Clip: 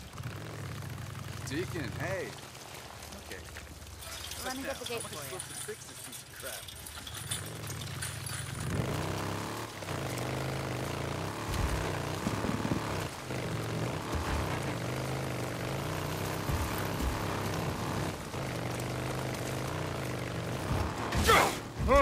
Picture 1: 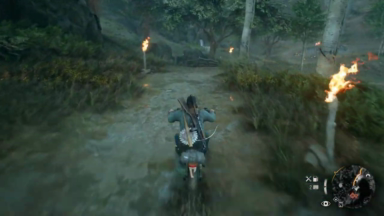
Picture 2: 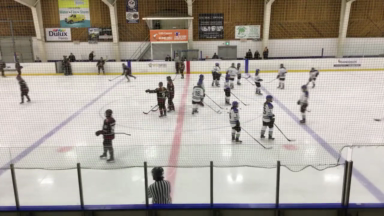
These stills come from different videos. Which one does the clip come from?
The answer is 1